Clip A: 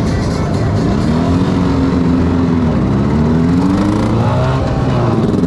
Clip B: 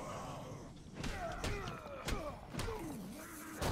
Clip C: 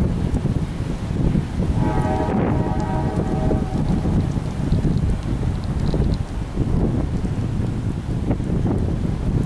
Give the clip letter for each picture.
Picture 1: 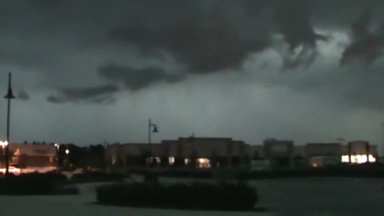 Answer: C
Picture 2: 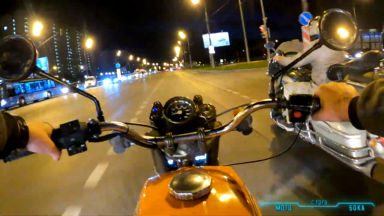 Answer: A